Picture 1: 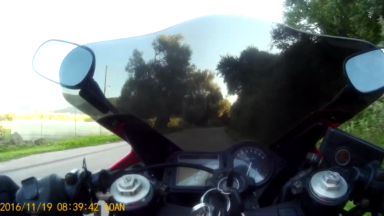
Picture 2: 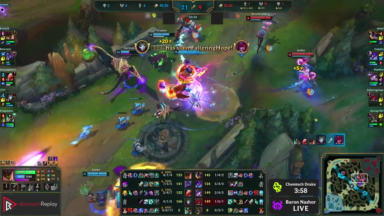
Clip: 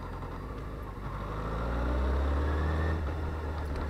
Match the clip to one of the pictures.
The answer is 1